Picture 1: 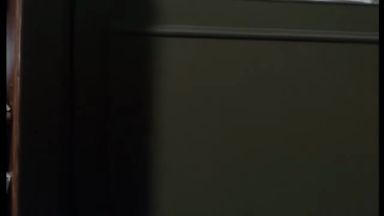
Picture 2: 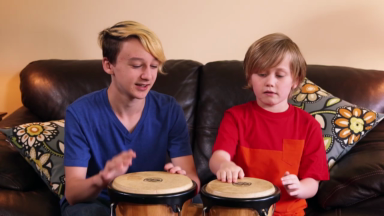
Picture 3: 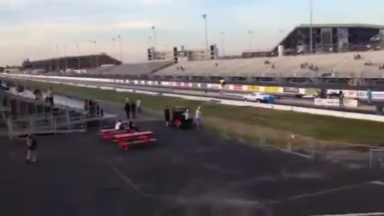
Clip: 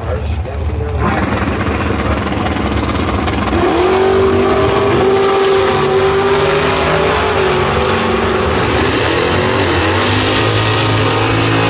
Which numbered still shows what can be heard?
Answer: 3